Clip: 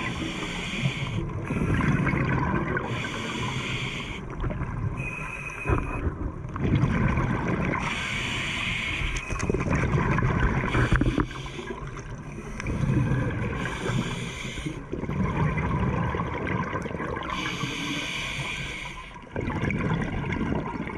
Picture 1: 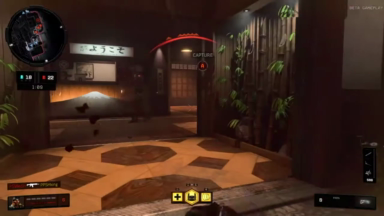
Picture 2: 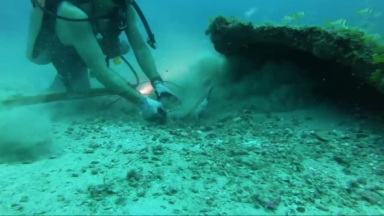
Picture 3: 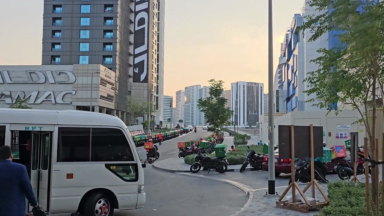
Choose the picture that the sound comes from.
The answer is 2